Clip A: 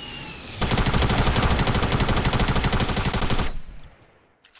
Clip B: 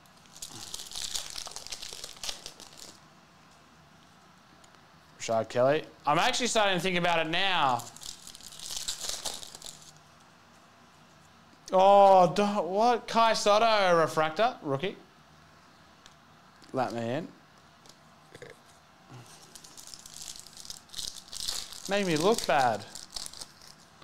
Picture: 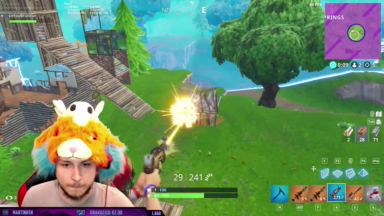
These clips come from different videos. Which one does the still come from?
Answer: A